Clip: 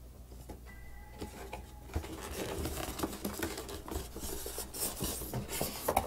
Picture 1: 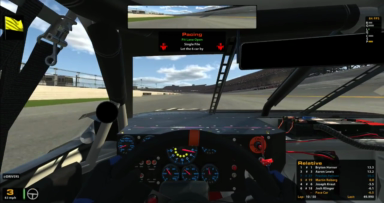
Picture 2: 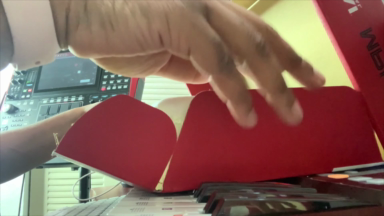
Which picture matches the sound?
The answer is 2